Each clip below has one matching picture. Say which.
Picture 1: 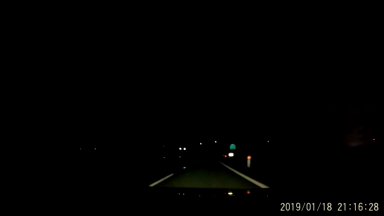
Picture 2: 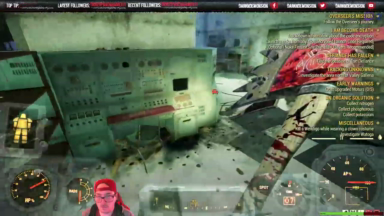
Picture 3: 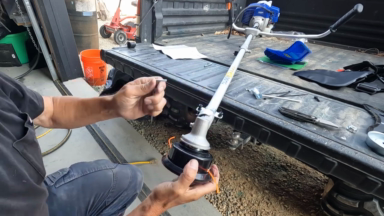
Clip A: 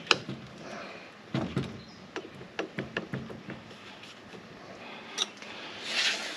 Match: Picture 3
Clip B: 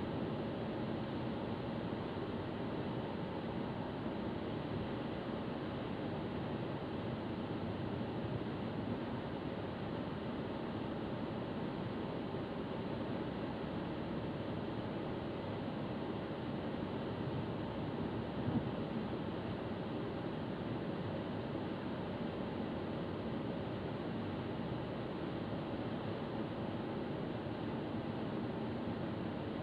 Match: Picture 1